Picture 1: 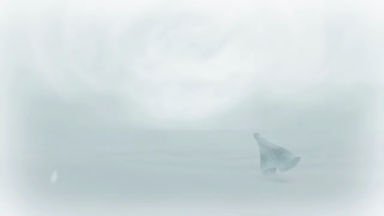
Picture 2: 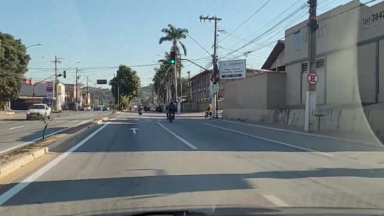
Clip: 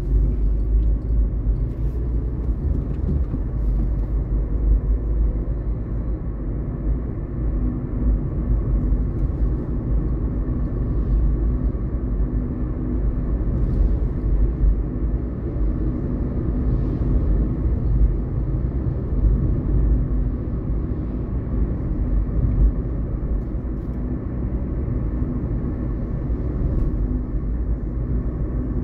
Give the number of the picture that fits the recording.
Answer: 2